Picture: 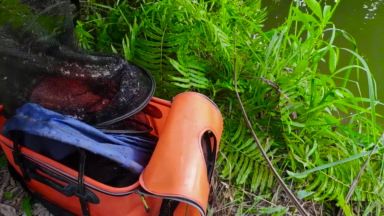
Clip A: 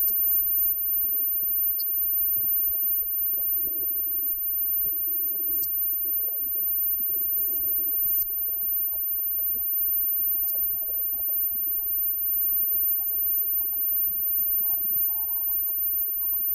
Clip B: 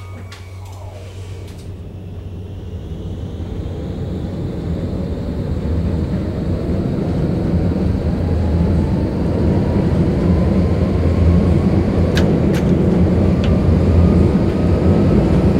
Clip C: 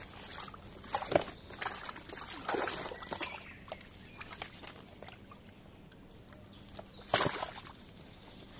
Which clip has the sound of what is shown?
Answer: C